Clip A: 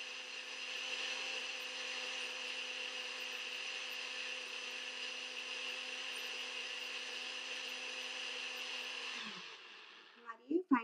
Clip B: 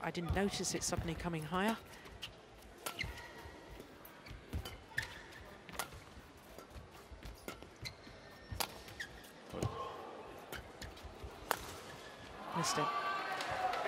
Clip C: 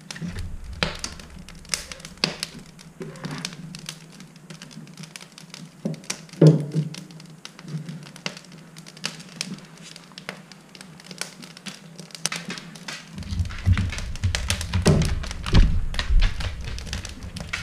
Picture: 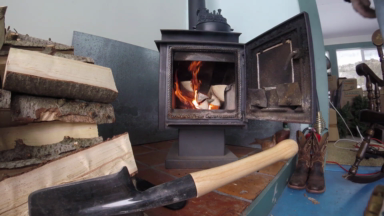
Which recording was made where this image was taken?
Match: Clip C